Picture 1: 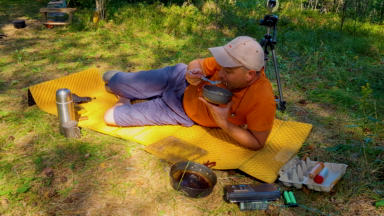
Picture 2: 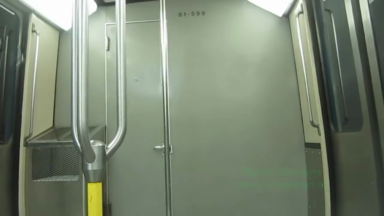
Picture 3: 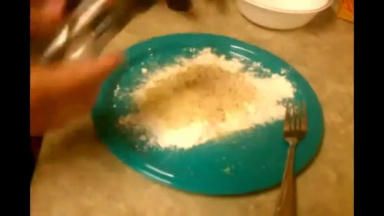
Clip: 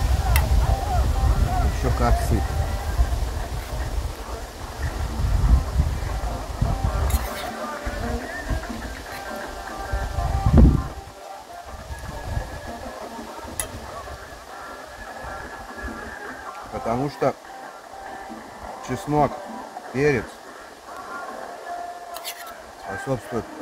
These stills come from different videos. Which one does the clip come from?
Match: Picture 1